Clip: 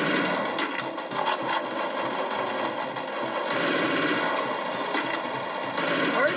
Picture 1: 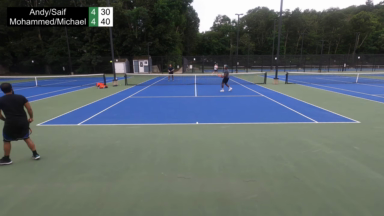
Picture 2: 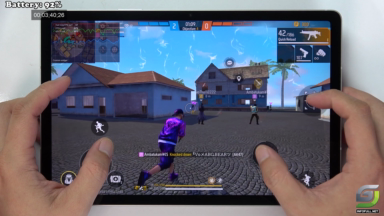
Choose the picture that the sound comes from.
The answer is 2